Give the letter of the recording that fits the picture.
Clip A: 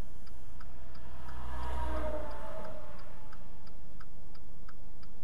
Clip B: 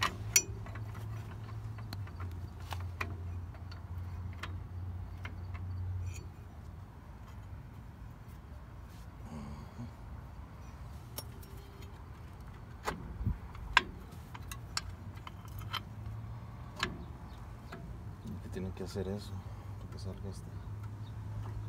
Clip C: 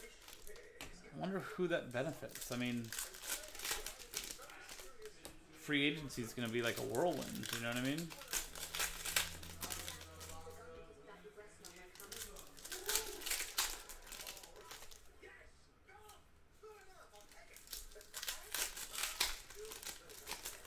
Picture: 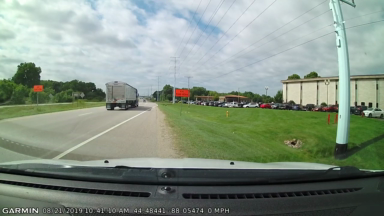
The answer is A